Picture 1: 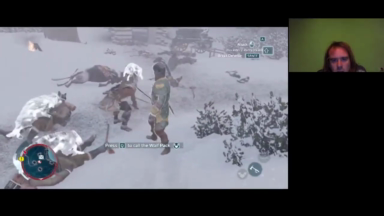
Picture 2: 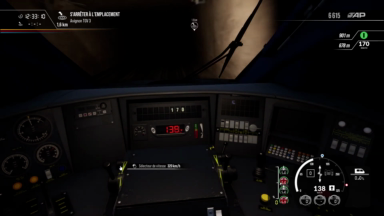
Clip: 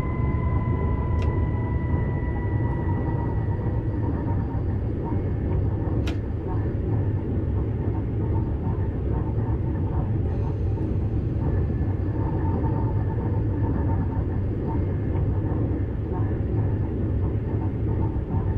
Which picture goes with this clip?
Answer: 2